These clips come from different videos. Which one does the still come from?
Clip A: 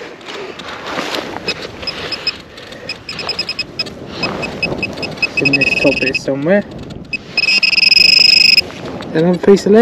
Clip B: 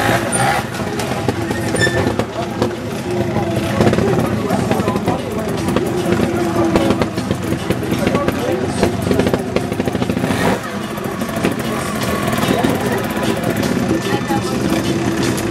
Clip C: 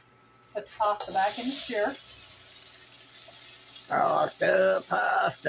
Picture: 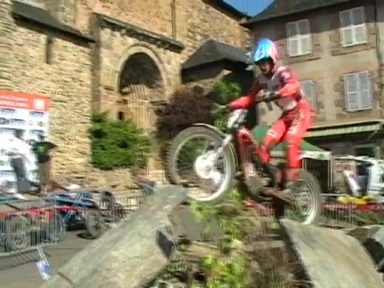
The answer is B